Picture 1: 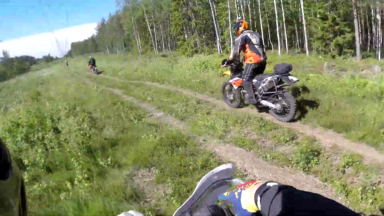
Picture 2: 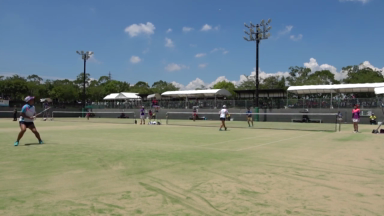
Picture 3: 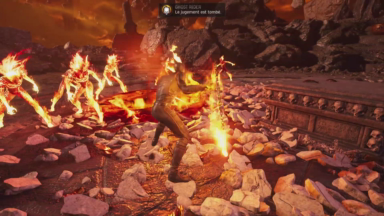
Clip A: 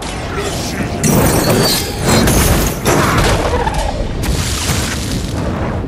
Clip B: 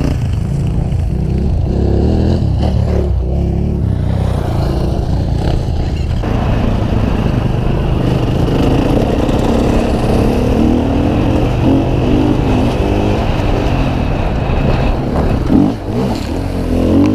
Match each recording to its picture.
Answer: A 3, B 1